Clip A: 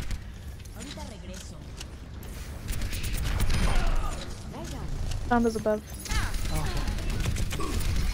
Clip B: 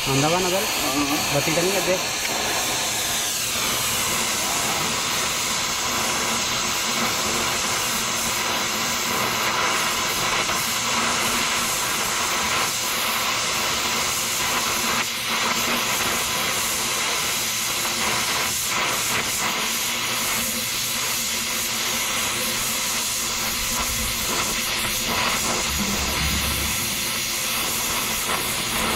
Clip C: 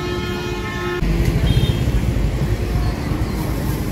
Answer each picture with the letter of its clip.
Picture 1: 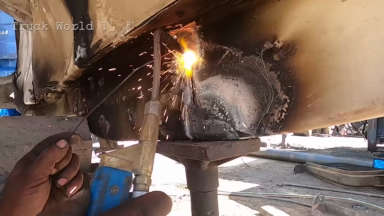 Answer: B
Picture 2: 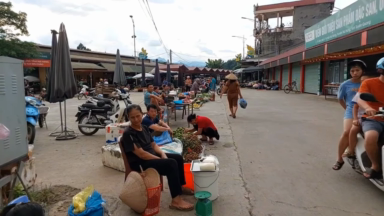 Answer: C